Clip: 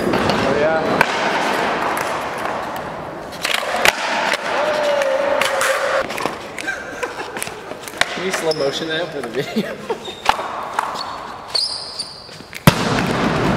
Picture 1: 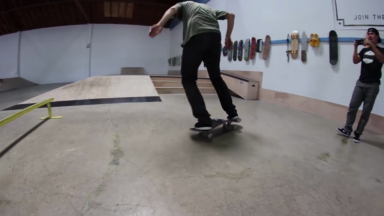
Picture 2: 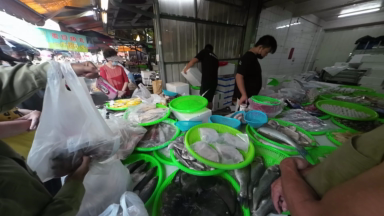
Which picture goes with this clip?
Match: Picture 1